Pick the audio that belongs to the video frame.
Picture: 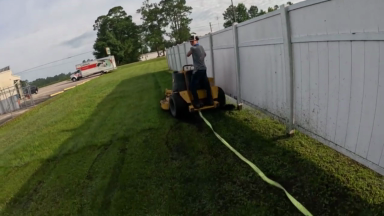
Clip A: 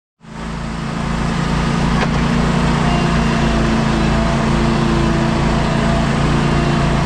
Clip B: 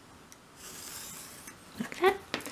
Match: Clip A